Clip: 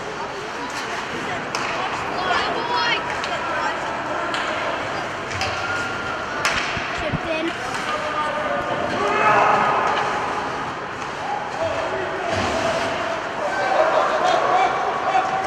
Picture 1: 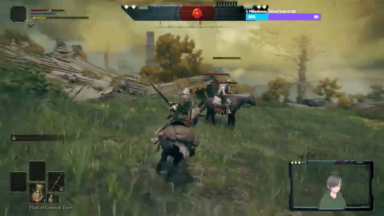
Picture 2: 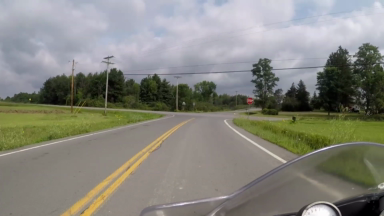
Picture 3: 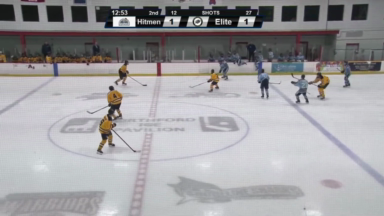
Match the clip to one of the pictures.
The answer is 3